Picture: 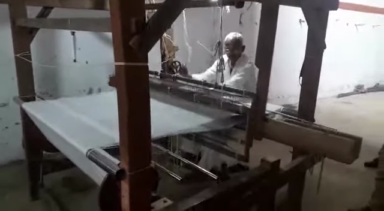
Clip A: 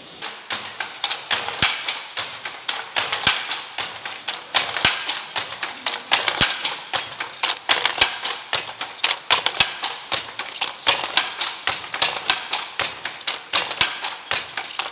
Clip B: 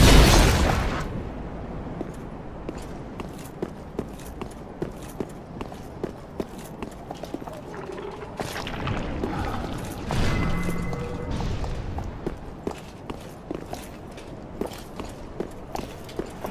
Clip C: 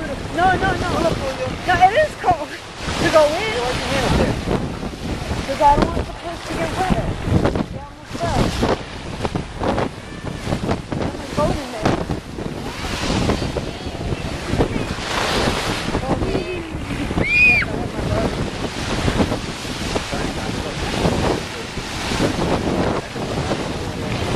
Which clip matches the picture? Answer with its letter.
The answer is A